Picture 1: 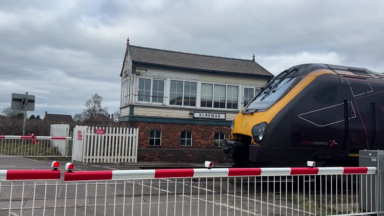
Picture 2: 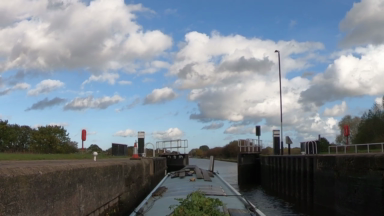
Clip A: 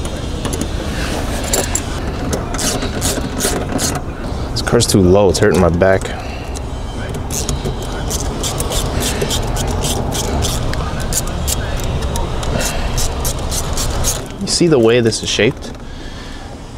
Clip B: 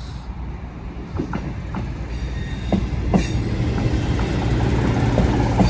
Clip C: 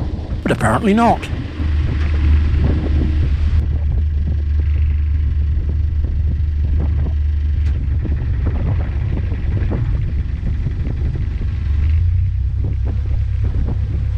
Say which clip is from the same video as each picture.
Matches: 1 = B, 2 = C